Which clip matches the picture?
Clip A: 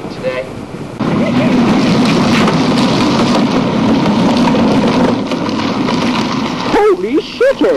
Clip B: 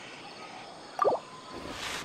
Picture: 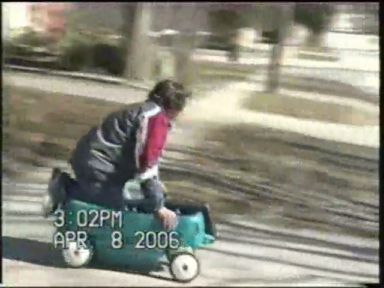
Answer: A